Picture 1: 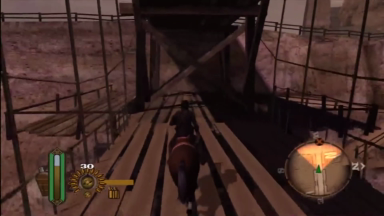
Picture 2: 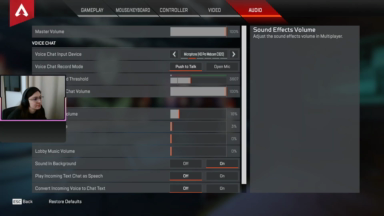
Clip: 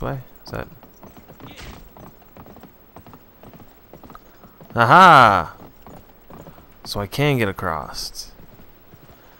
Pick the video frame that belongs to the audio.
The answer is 1